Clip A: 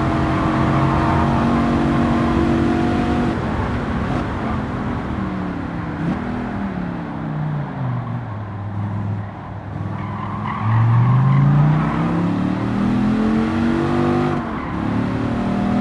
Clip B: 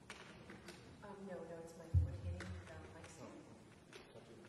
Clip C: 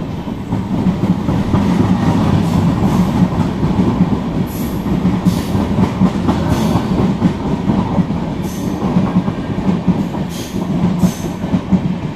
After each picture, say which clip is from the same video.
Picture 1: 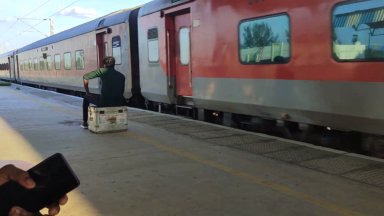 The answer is C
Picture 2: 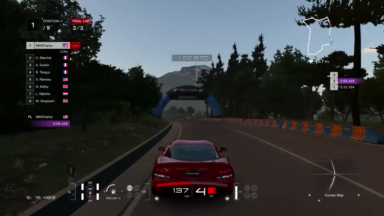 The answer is A